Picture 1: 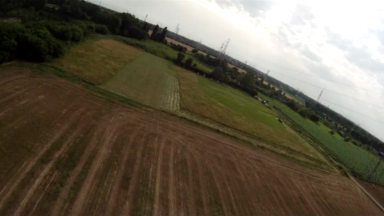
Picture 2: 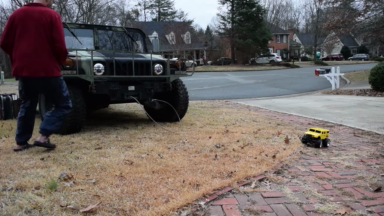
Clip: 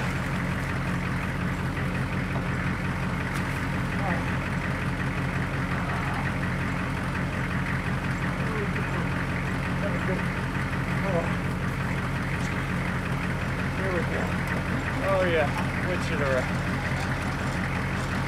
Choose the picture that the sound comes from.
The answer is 2